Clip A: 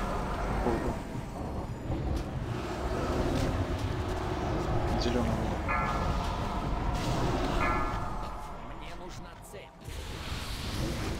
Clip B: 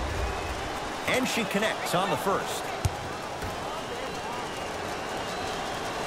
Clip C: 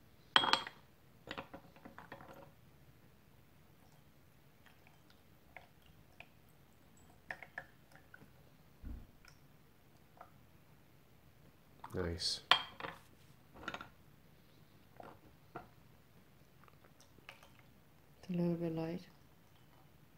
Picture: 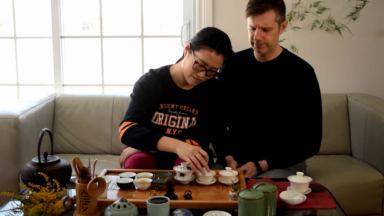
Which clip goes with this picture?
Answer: C